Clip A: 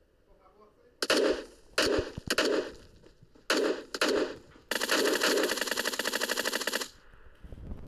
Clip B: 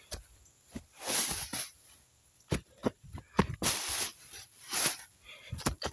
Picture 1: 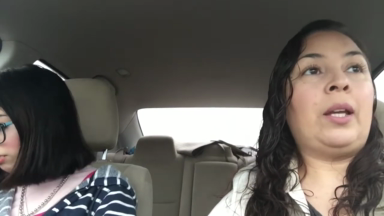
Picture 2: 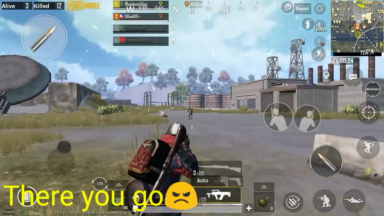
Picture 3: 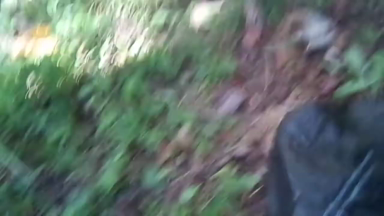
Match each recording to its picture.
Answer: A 2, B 3